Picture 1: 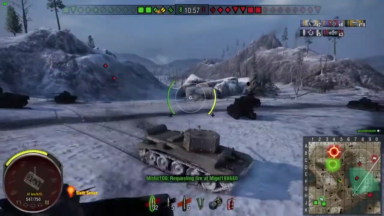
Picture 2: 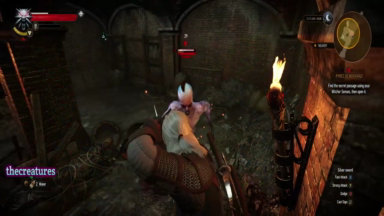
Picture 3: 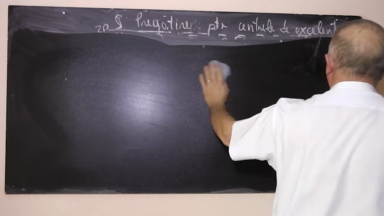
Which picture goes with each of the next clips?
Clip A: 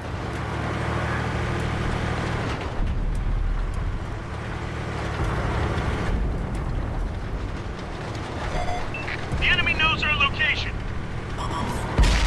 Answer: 1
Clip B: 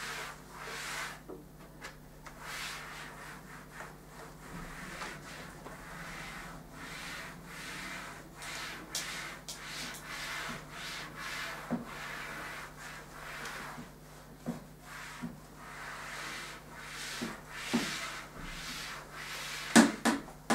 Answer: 3